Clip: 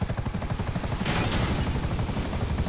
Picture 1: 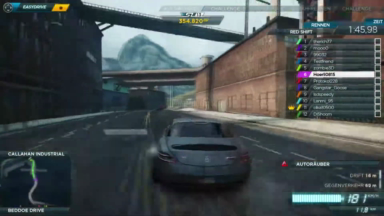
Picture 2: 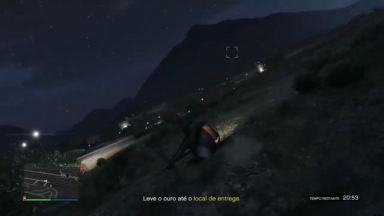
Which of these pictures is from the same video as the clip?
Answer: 2